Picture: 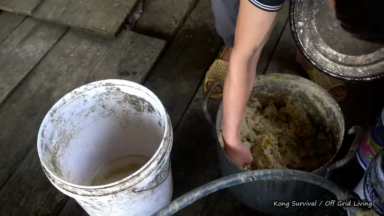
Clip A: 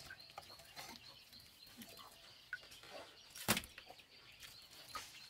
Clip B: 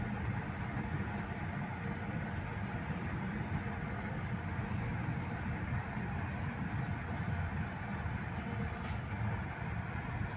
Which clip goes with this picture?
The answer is A